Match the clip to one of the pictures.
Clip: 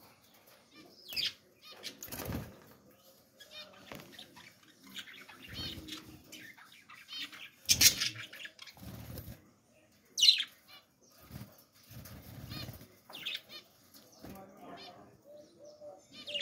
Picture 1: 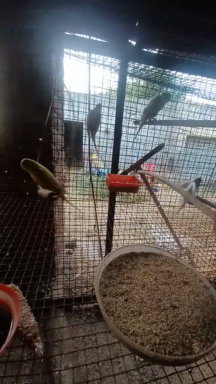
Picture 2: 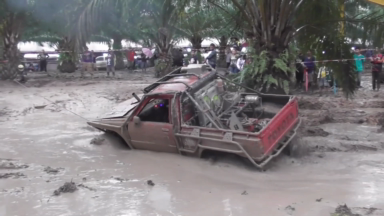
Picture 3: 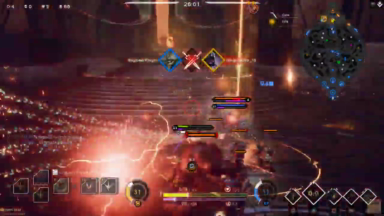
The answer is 1